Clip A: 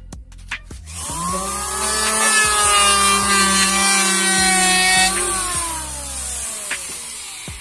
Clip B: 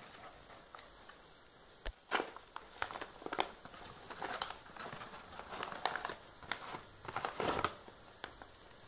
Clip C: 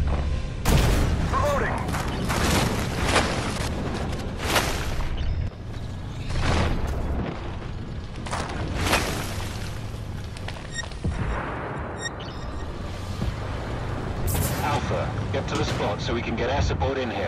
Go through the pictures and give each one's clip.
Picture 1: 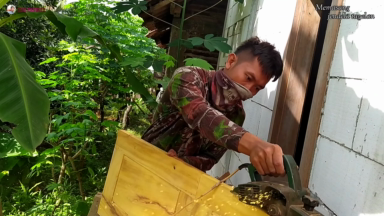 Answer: A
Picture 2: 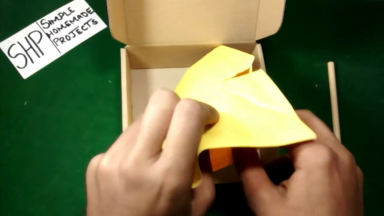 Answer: B